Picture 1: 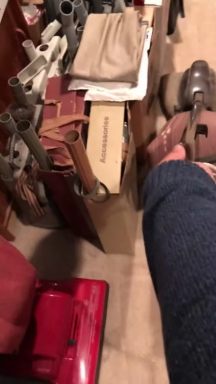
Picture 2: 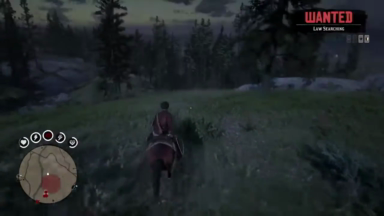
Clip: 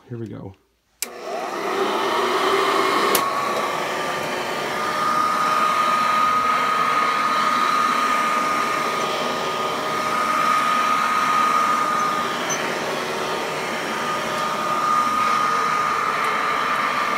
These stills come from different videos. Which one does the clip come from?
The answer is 1